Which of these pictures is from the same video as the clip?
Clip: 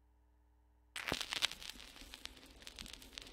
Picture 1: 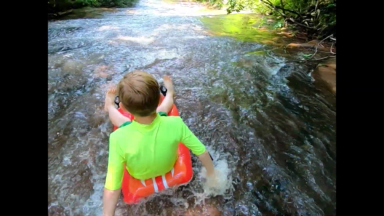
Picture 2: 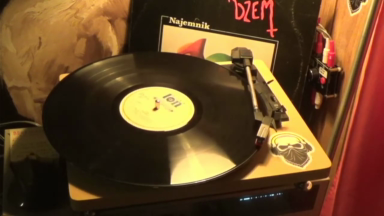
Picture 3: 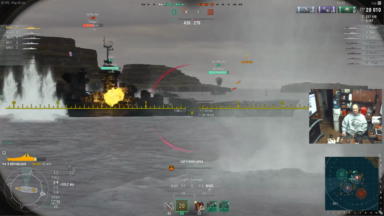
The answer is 2